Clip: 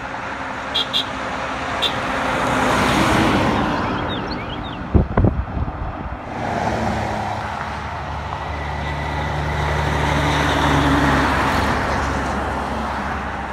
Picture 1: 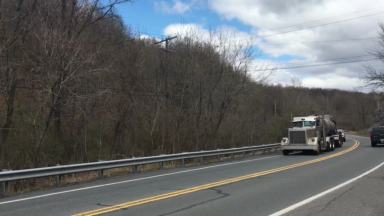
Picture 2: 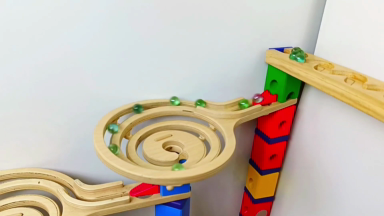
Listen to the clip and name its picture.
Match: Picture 1